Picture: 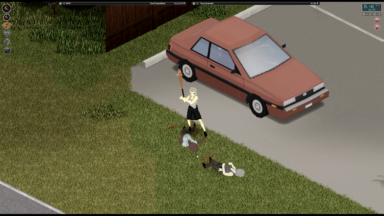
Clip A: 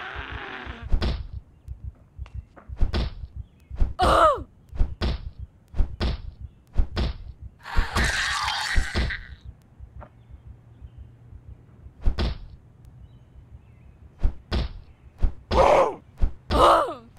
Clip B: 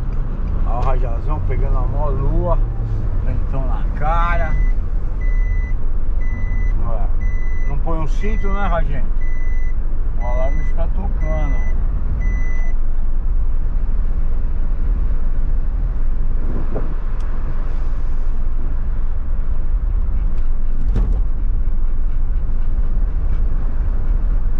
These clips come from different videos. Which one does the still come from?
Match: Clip A